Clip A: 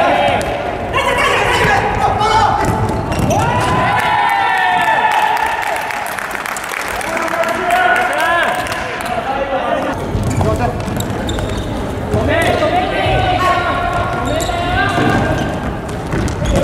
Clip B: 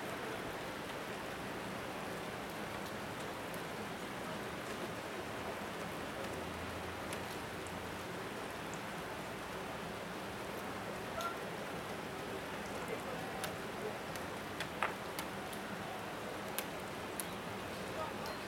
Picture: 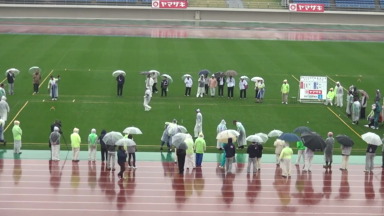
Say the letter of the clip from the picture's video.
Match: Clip B